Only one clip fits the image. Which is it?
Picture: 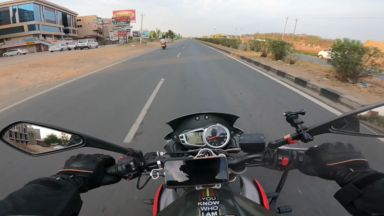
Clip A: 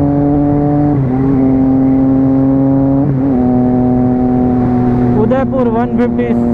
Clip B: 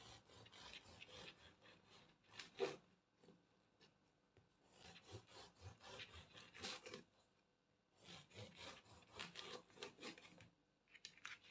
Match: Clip A